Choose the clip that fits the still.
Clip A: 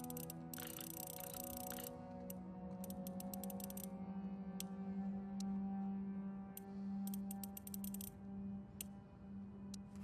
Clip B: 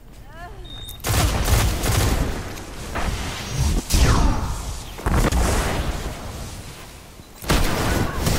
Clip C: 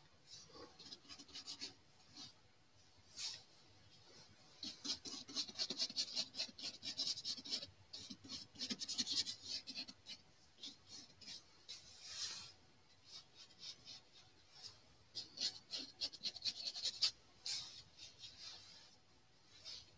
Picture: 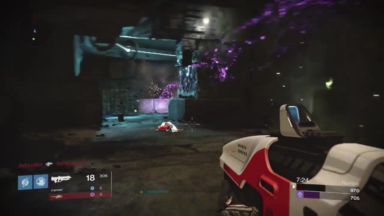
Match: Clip B